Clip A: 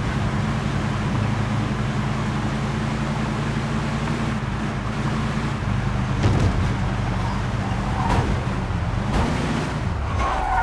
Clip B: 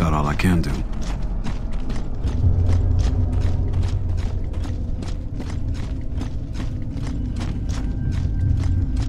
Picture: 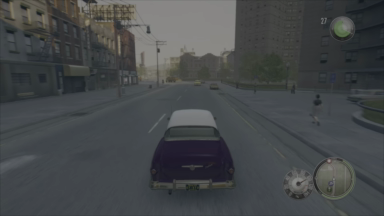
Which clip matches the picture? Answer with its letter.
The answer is A